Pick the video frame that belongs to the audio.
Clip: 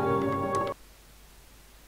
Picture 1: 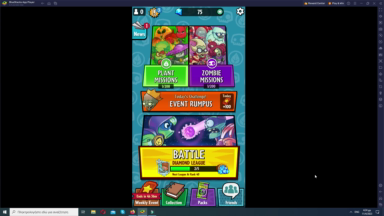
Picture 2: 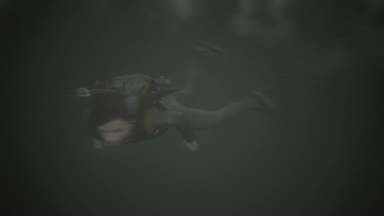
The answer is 1